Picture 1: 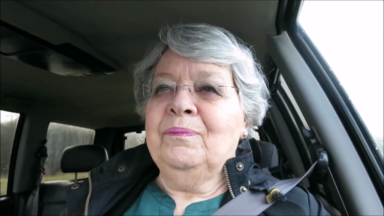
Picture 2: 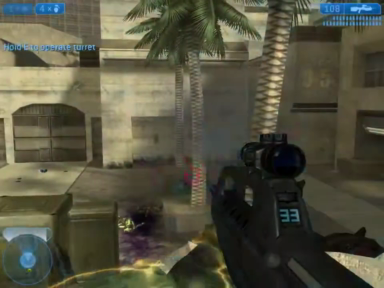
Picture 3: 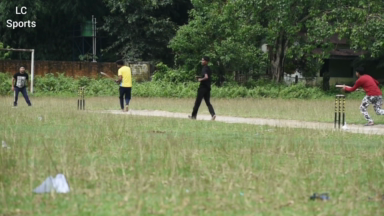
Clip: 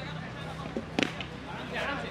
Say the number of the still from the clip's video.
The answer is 3